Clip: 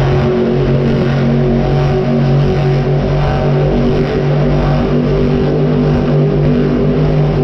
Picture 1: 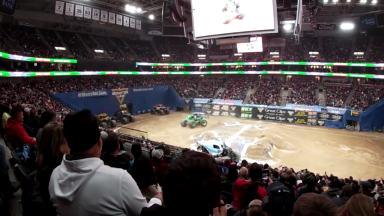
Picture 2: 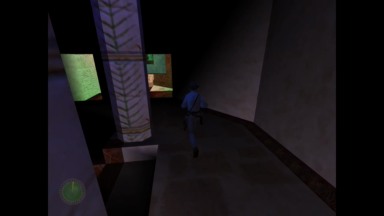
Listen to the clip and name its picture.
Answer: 1